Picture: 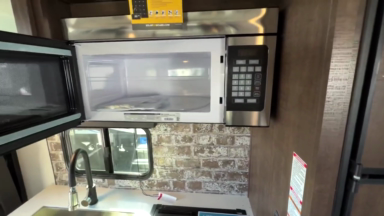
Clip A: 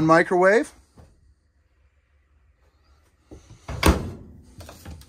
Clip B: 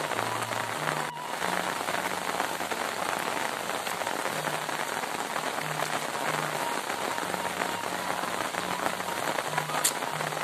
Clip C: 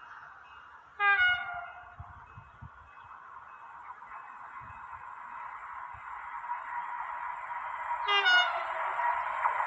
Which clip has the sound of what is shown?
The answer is A